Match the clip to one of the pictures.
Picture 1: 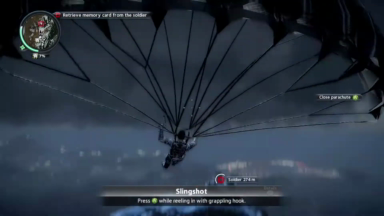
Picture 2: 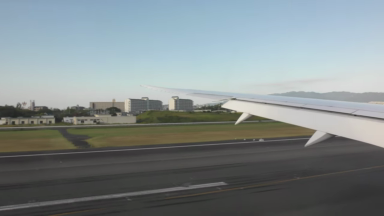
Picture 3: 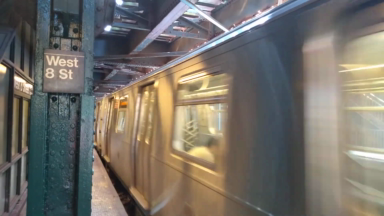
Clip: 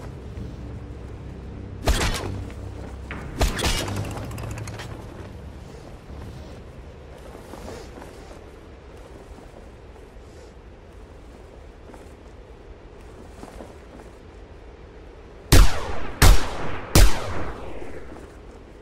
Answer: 1